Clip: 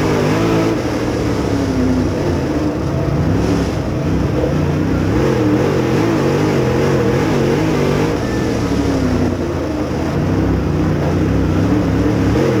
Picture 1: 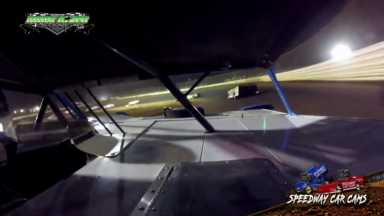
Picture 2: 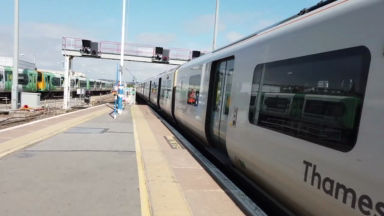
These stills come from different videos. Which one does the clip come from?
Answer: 1